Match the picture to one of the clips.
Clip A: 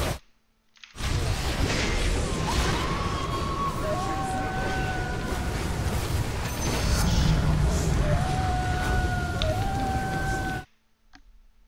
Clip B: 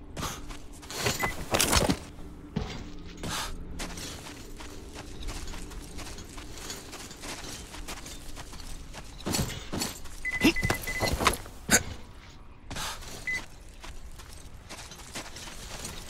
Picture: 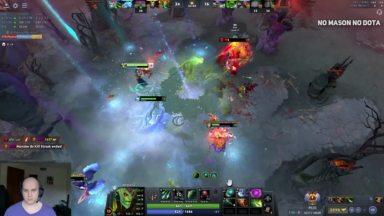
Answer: A